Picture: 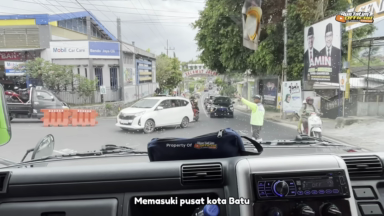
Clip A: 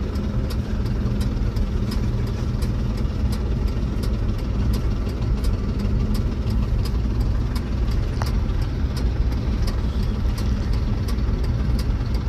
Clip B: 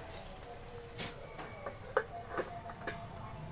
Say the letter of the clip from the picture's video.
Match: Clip A